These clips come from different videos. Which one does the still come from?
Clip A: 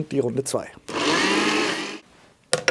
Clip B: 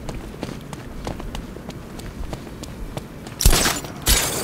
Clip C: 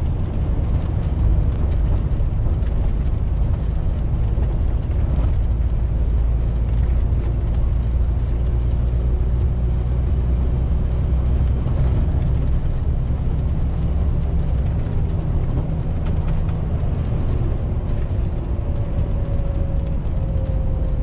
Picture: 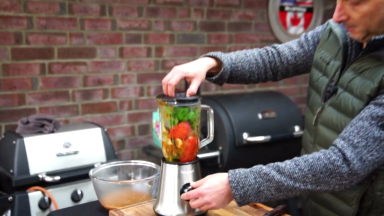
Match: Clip A